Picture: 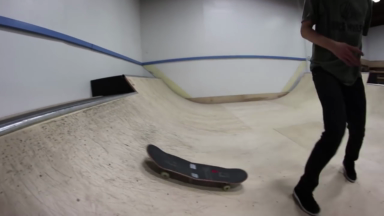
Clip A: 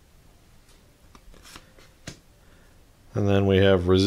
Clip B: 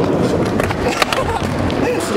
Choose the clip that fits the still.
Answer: B